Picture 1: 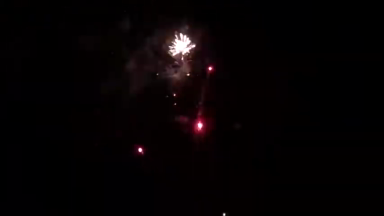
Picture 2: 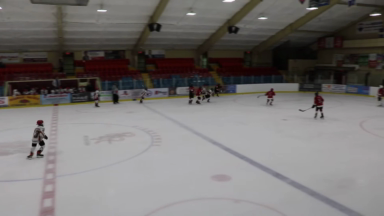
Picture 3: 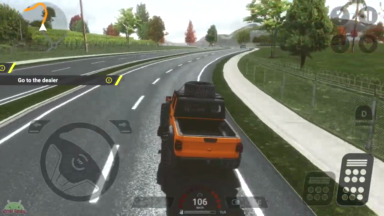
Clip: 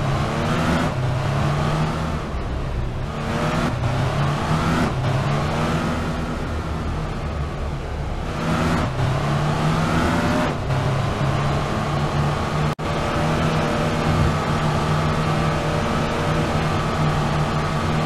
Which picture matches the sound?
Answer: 3